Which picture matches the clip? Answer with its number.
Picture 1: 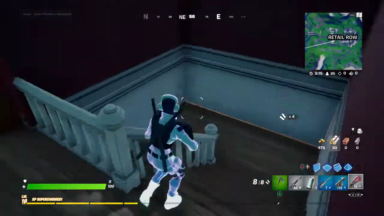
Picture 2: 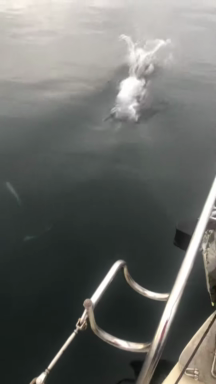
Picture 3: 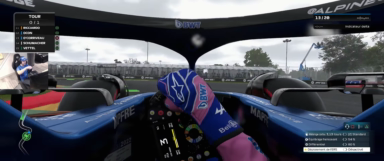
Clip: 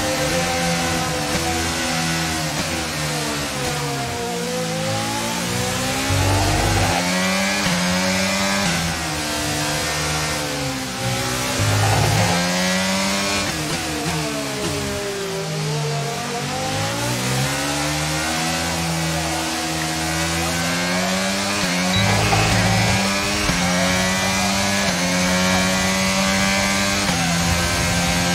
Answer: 3